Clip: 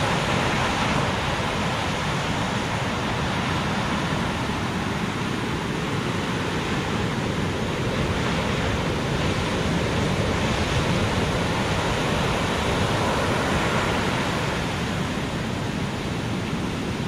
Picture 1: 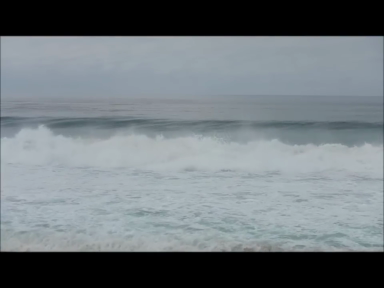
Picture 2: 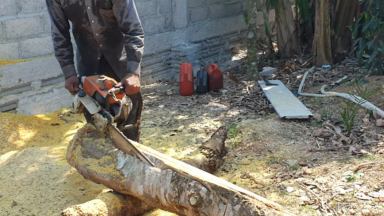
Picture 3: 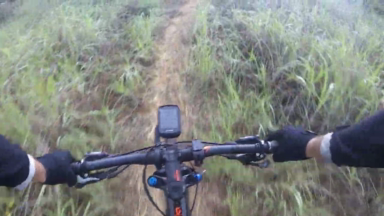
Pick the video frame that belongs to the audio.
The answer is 1